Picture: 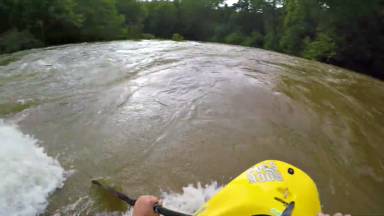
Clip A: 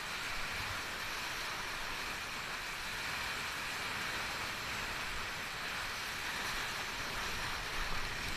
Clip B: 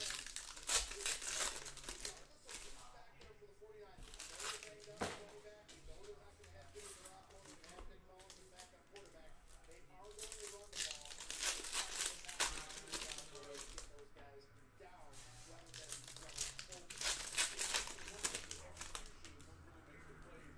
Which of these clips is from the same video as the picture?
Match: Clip A